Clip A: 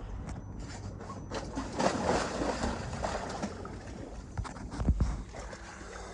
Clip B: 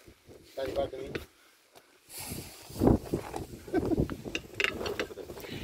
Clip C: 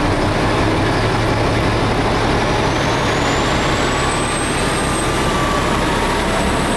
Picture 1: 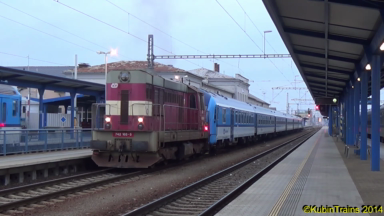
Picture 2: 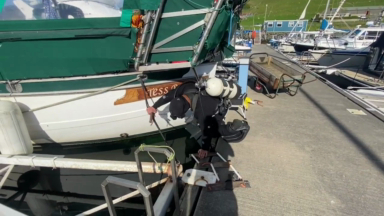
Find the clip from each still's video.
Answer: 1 C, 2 A